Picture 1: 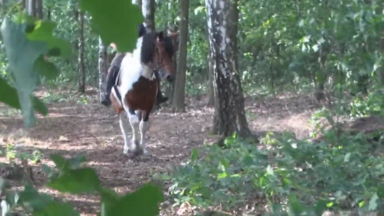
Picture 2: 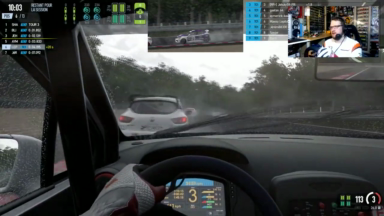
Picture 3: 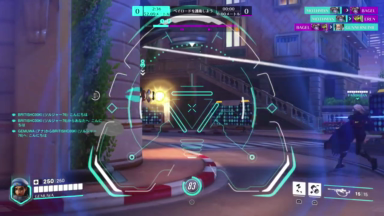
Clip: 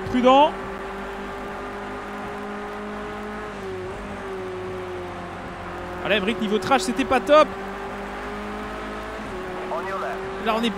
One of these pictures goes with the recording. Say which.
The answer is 2